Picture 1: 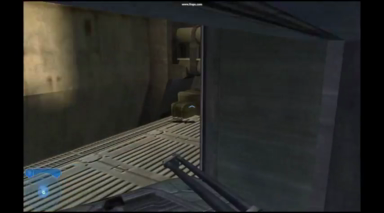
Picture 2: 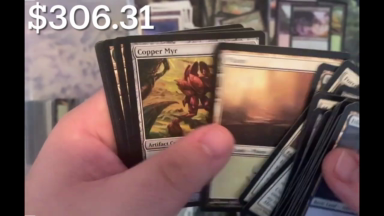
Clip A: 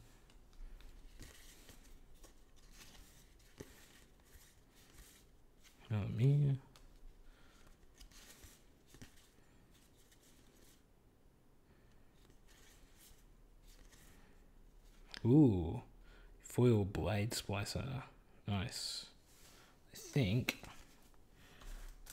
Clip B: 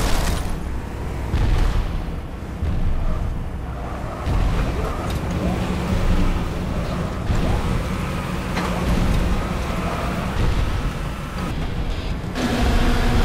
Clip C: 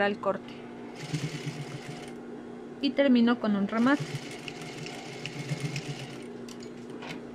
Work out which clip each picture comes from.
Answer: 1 B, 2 A